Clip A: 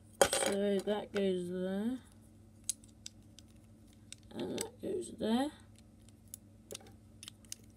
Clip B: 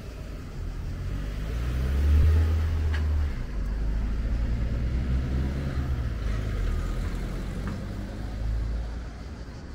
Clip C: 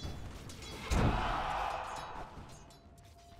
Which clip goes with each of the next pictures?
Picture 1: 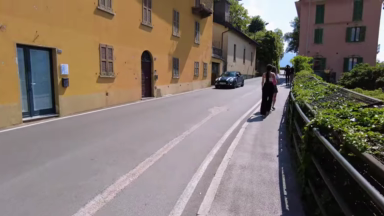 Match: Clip B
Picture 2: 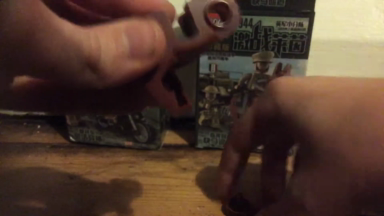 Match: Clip A